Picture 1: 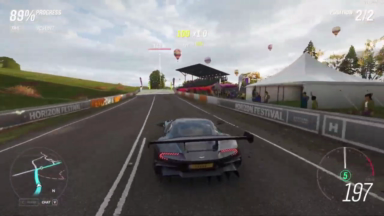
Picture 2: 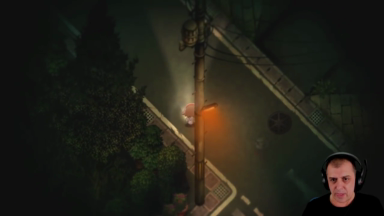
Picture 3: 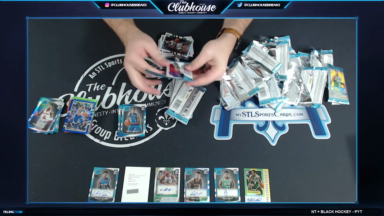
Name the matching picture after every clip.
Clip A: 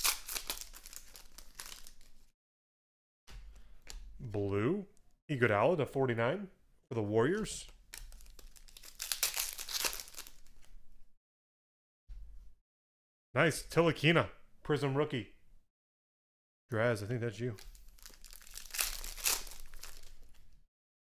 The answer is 3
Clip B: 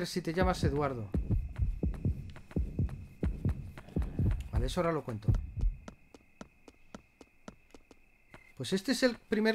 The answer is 2